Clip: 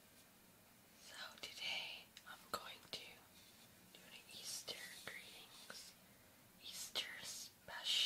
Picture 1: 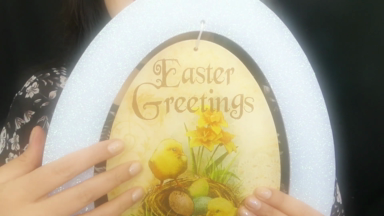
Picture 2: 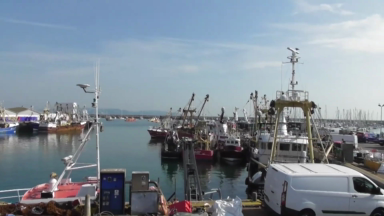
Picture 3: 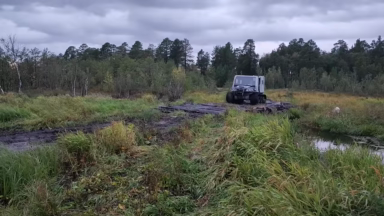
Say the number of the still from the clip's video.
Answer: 1